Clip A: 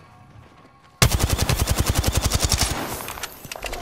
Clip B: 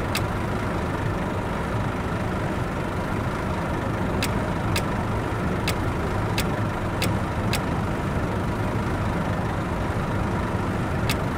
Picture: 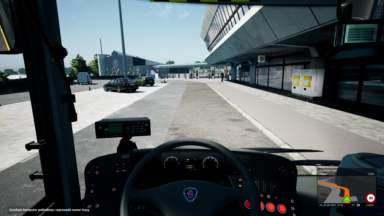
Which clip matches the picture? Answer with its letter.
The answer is B